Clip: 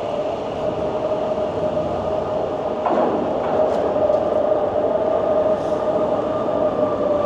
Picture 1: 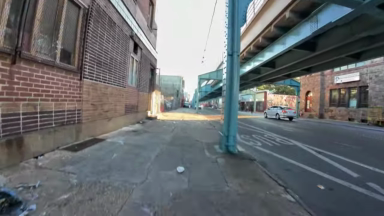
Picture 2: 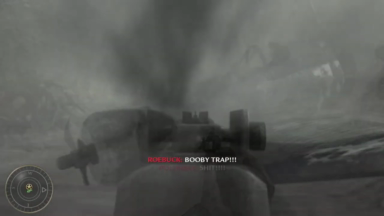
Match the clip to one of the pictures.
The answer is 1